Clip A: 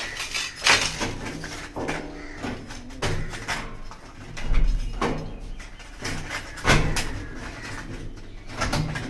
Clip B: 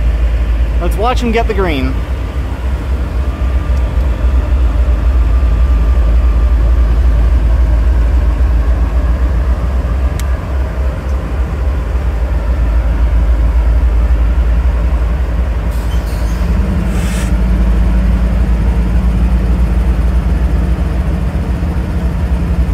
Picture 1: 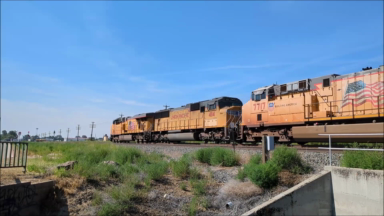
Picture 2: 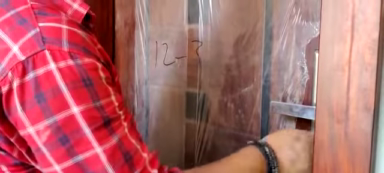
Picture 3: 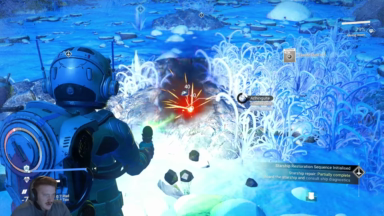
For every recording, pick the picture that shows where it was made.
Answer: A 2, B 1